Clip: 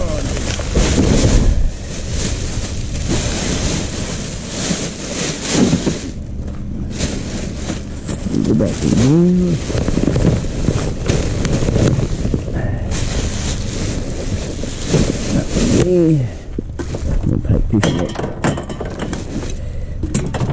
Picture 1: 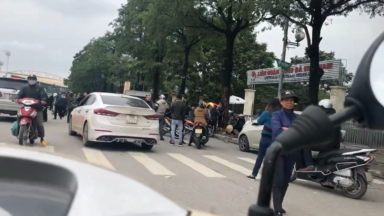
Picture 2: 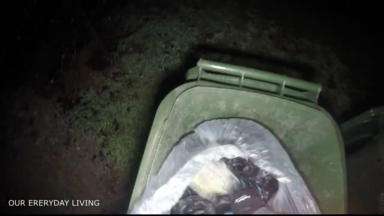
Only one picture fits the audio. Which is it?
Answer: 2